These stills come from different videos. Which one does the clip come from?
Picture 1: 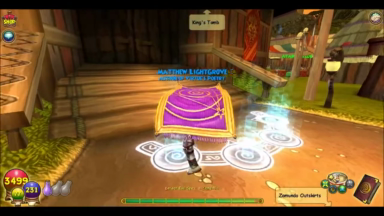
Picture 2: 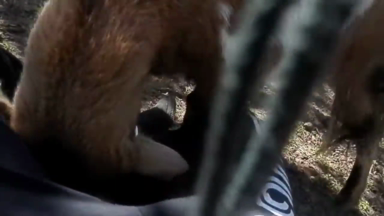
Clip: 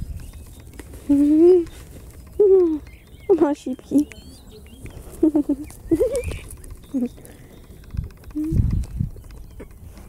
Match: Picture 2